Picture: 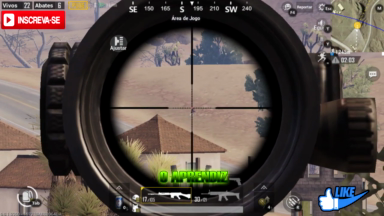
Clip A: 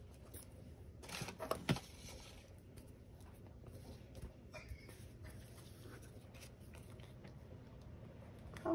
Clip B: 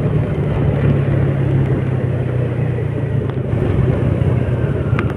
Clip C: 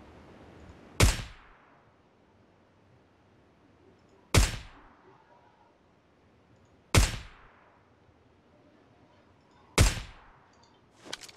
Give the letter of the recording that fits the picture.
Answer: C